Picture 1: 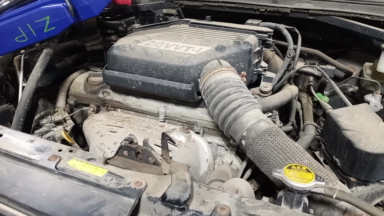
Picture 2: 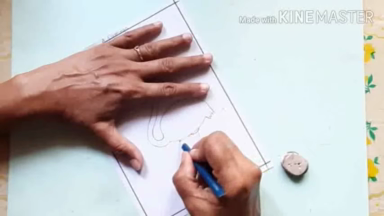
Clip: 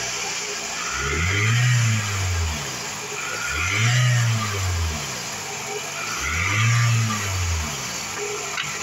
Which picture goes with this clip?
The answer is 1